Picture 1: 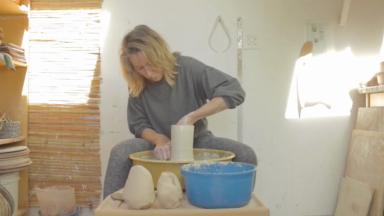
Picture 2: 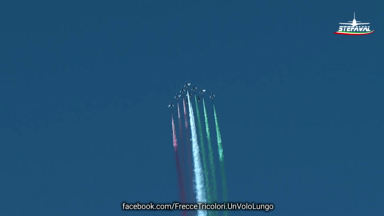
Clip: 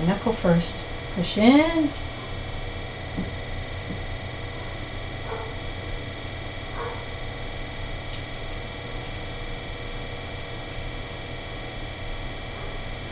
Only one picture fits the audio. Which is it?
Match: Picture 1